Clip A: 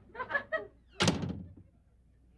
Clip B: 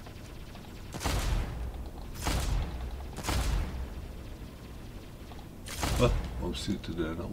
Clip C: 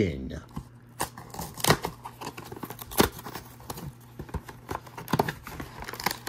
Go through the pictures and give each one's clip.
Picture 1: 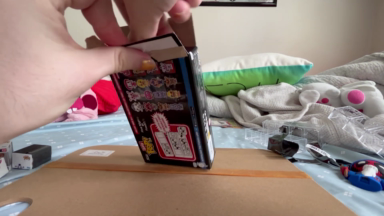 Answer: C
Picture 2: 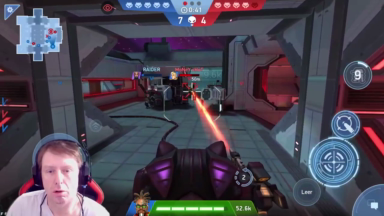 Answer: B